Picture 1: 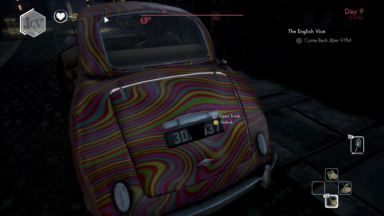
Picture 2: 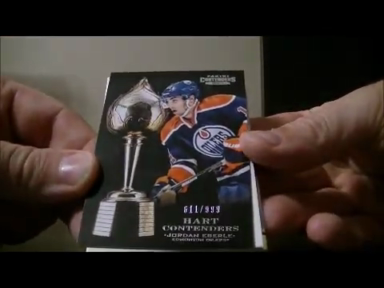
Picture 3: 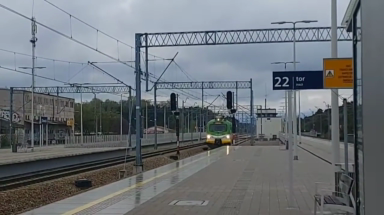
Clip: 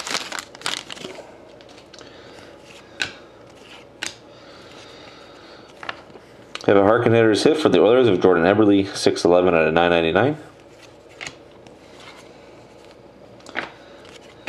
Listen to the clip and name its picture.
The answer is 2